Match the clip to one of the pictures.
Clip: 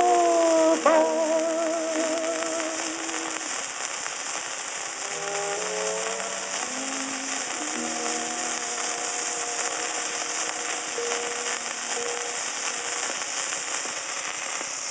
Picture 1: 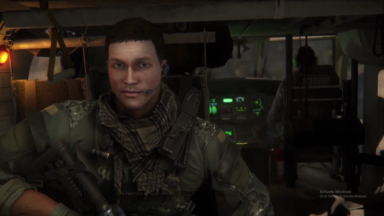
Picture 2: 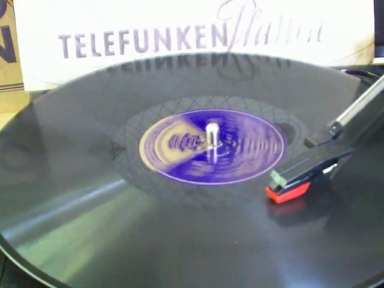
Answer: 2